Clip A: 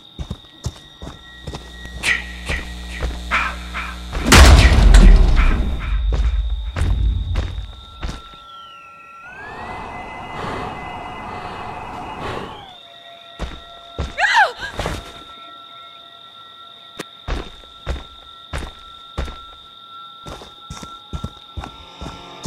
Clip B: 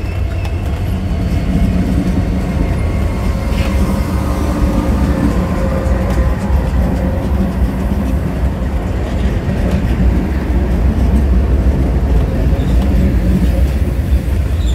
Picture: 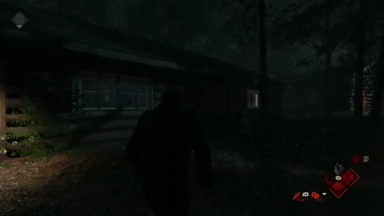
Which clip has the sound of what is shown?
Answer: A